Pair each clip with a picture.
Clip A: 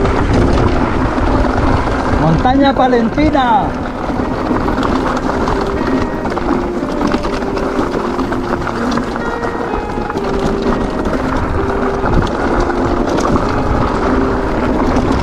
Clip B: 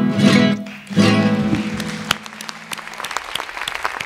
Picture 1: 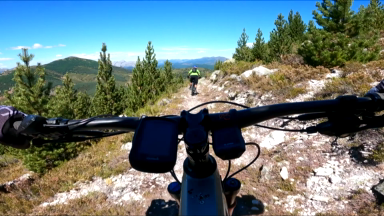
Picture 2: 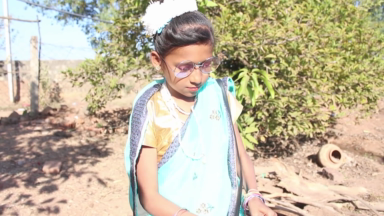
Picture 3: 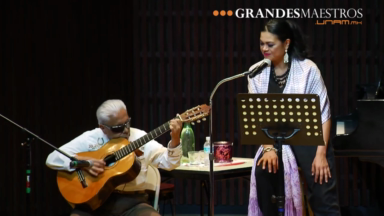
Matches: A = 1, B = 3